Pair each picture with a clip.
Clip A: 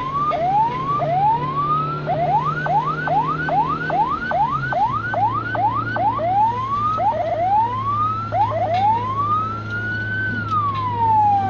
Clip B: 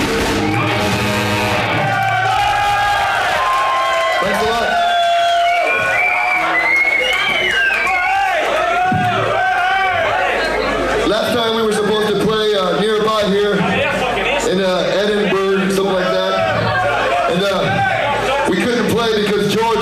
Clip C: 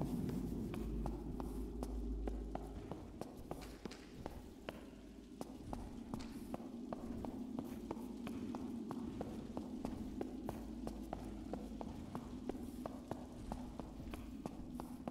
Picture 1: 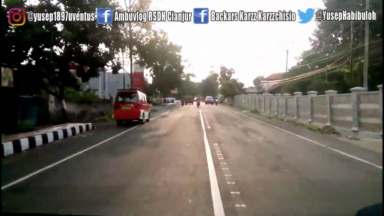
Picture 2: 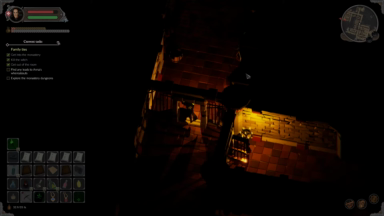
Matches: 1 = A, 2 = C